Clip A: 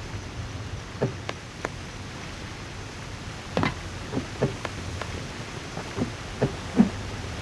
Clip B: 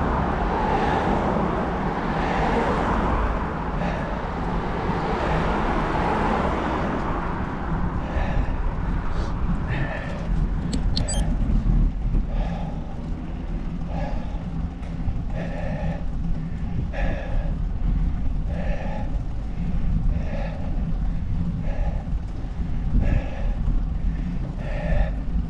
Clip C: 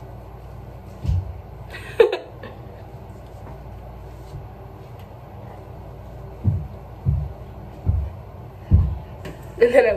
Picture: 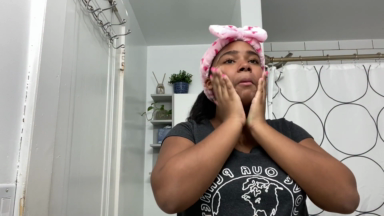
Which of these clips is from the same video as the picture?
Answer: C